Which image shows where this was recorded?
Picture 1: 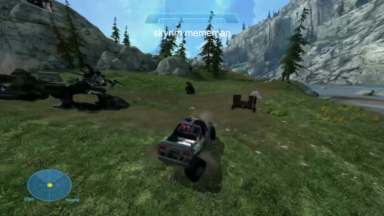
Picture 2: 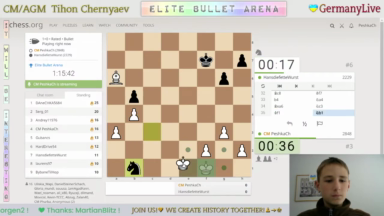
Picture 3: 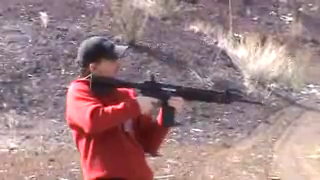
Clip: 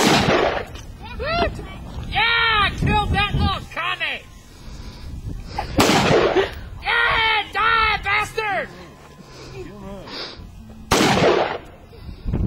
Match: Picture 3